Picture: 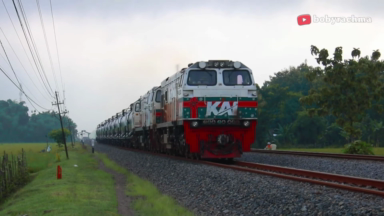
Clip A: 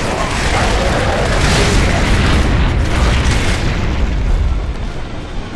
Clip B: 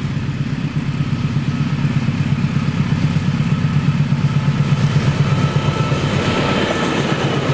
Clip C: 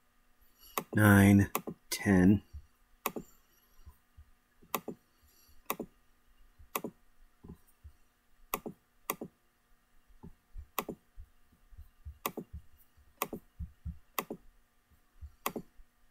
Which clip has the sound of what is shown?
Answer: B